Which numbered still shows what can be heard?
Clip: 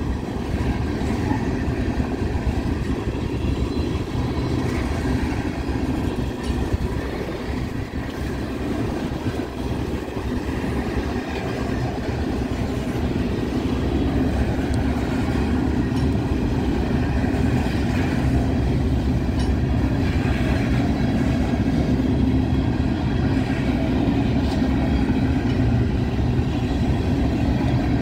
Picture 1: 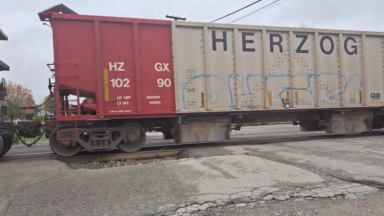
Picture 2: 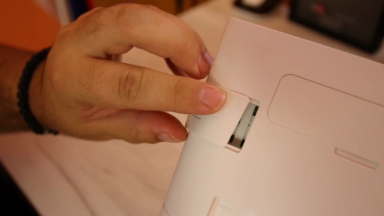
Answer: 1